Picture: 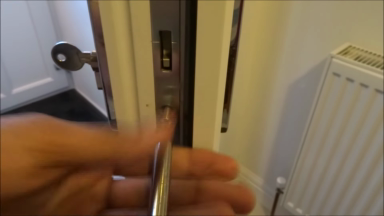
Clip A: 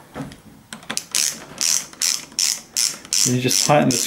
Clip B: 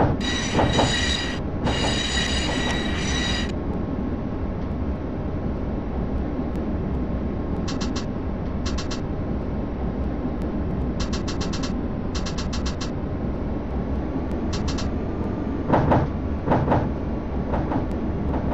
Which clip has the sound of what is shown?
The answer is A